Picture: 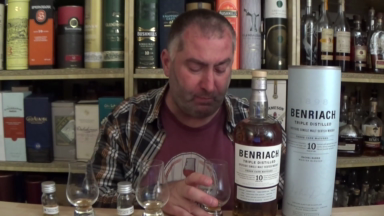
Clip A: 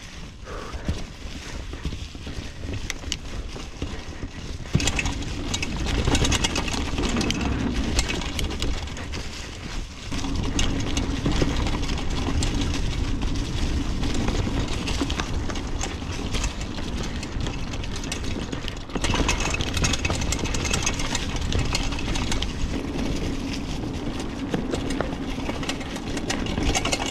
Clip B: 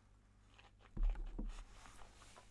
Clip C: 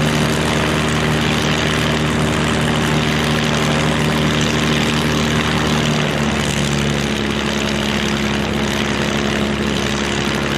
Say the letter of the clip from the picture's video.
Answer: B